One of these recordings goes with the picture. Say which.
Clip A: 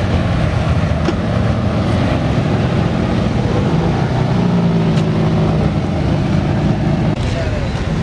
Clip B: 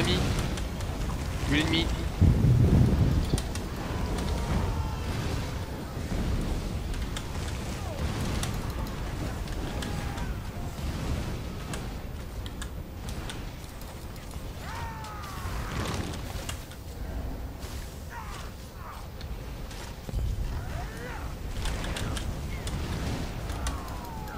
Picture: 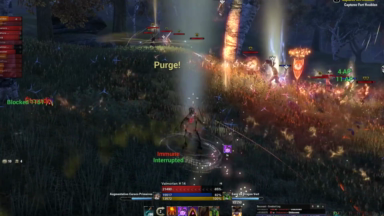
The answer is B